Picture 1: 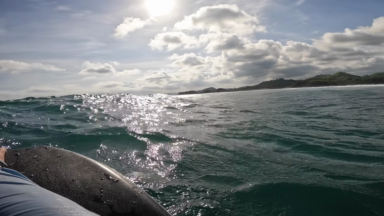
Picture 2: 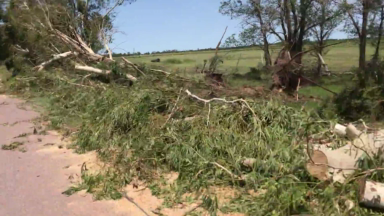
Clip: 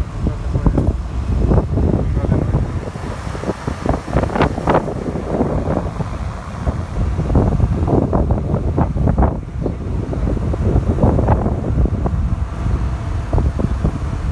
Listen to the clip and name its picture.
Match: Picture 2